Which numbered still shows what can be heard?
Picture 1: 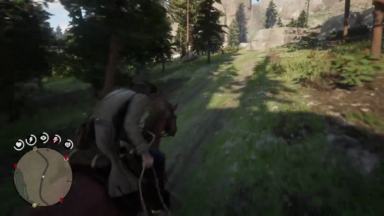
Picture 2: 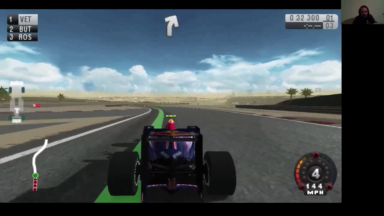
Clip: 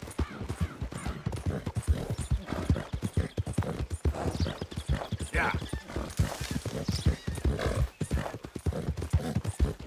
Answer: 1